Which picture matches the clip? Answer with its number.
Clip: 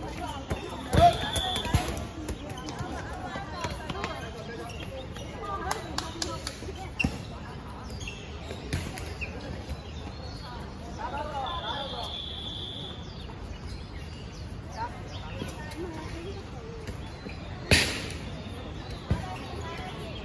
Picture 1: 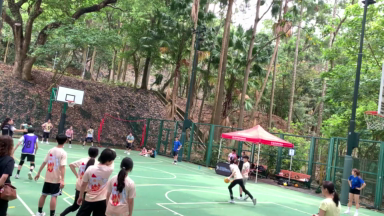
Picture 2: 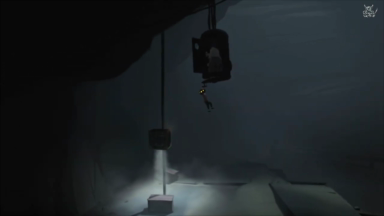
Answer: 1